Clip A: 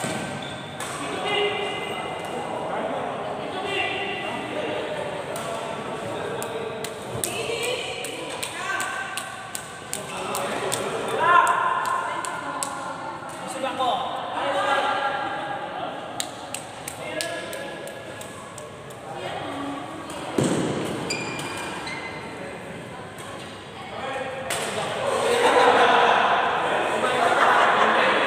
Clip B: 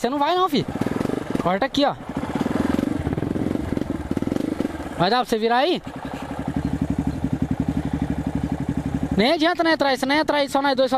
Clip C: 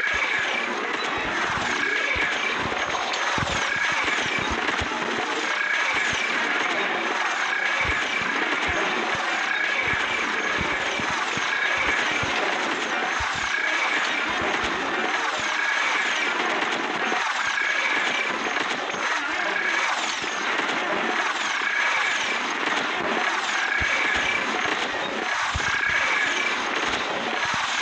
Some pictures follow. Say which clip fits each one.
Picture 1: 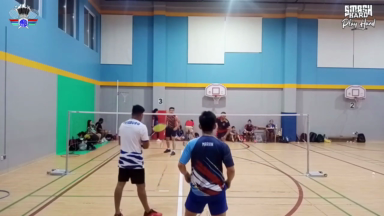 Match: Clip A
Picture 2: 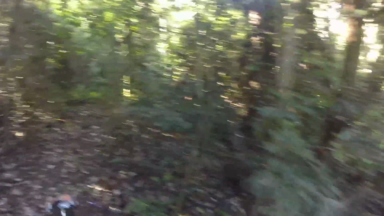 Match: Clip B